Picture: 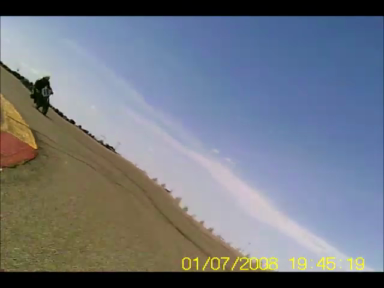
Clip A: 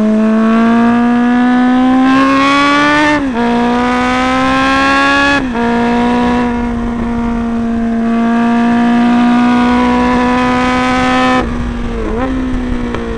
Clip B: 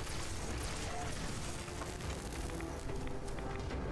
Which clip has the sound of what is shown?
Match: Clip A